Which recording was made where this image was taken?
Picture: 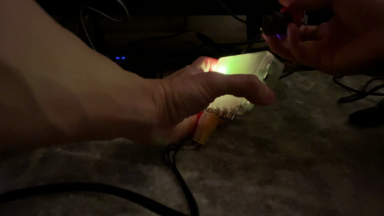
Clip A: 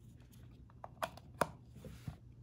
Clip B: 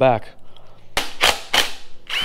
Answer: A